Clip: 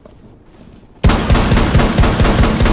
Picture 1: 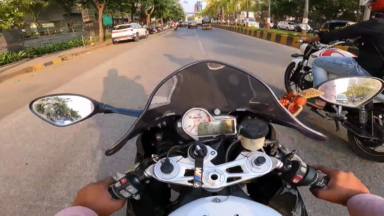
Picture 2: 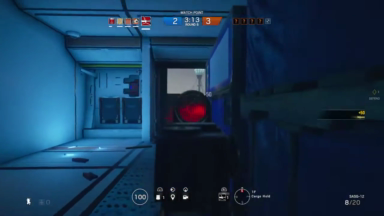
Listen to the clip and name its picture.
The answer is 2